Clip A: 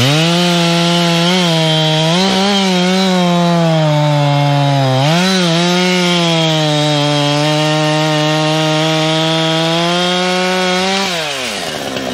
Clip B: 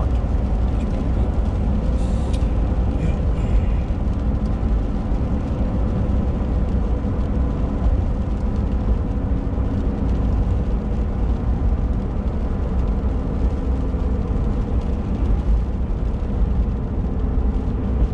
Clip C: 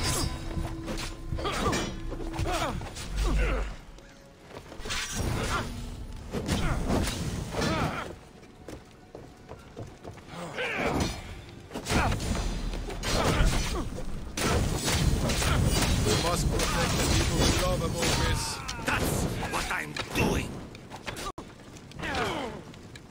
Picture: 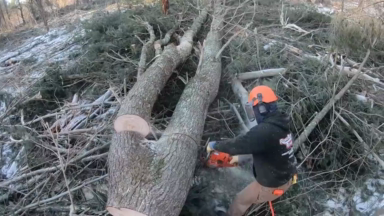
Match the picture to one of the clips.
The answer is A